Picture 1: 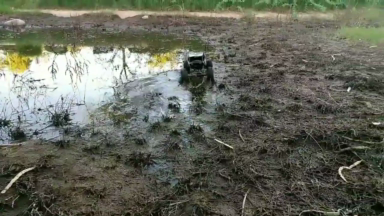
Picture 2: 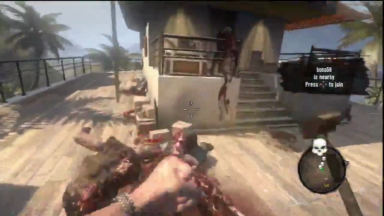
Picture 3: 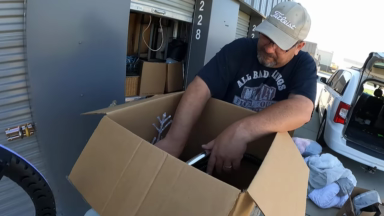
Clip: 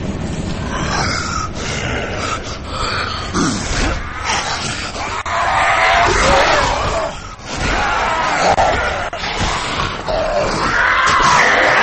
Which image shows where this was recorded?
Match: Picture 2